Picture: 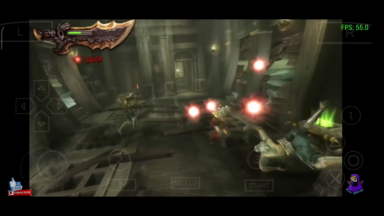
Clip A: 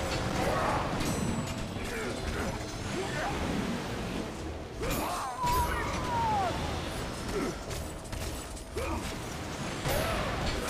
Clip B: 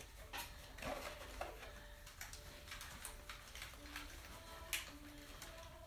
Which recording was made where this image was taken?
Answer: A